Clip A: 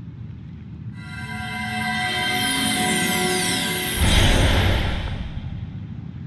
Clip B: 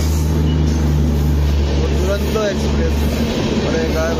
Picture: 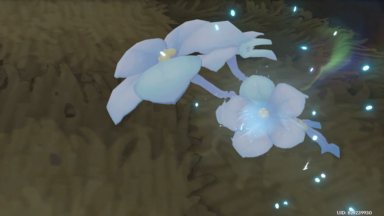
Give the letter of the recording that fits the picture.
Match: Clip A